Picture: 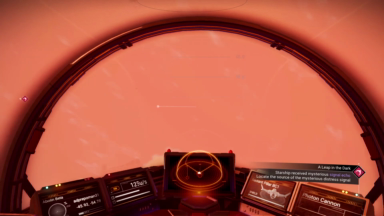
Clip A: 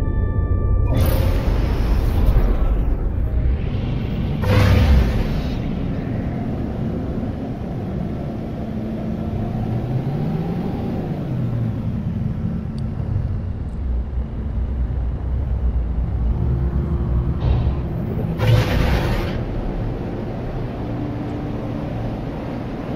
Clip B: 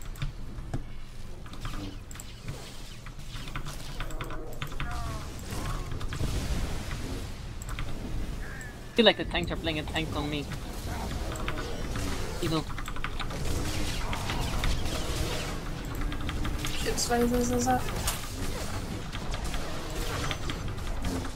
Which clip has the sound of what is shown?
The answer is A